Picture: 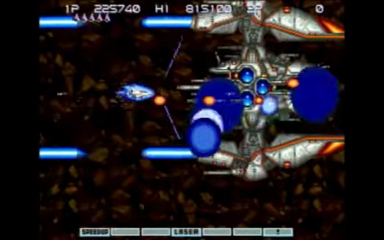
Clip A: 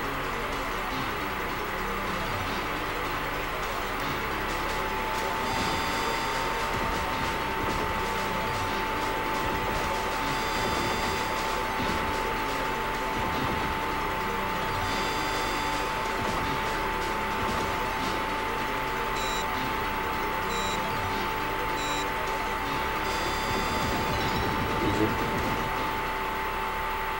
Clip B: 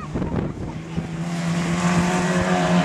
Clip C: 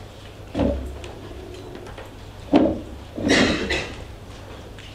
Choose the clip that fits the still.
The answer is A